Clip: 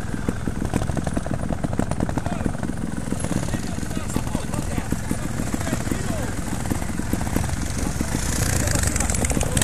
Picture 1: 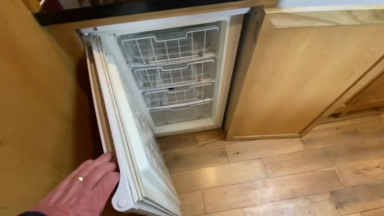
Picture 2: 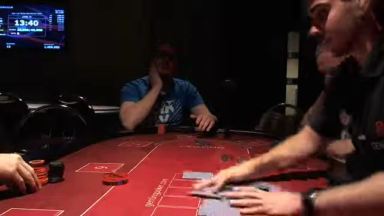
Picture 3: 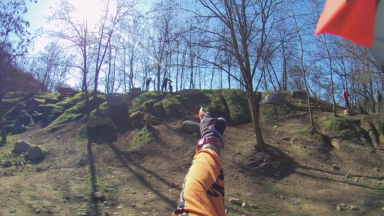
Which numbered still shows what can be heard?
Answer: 3